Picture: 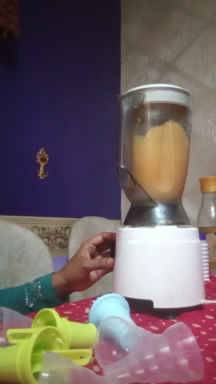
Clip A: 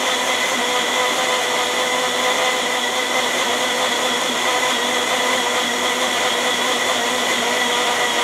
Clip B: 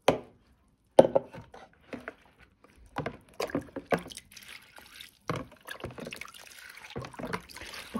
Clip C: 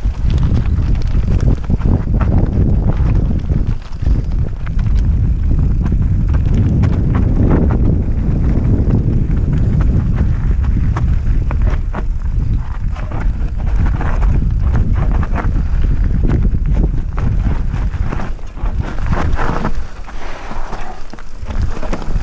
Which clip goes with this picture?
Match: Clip A